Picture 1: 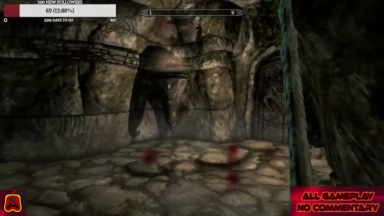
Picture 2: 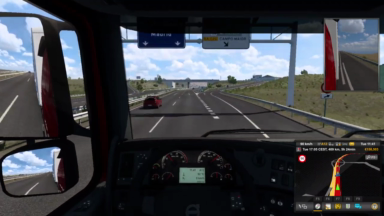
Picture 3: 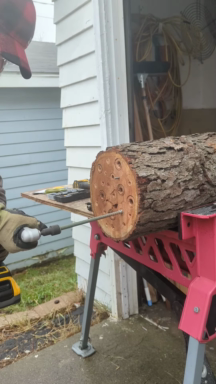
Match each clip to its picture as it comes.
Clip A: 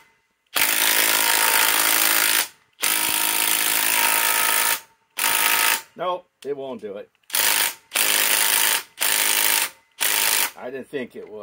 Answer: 3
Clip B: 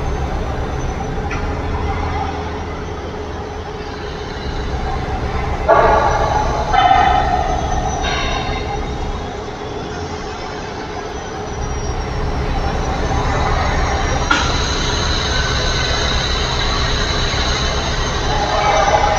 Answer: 2